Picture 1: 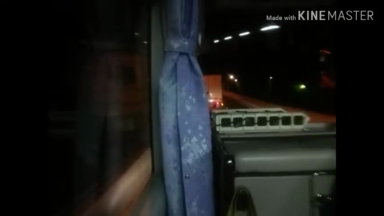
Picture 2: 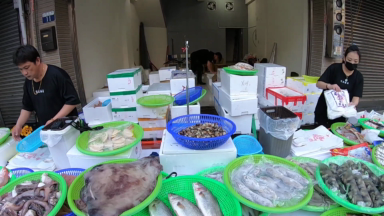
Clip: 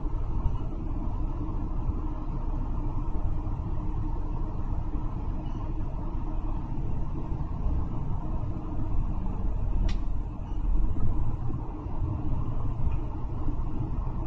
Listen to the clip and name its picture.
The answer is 1